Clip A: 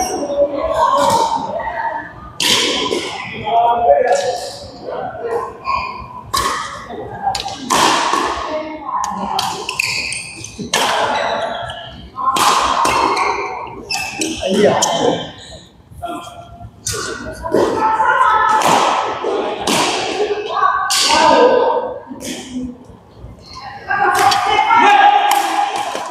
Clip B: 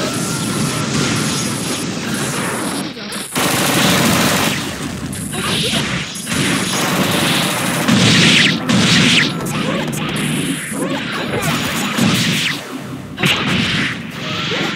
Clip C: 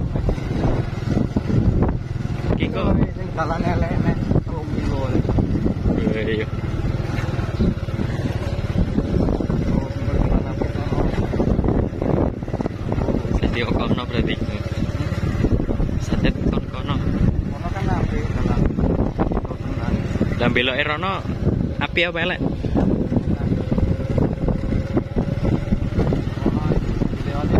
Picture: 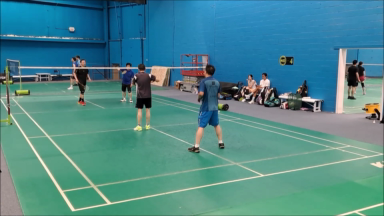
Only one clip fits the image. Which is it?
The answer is A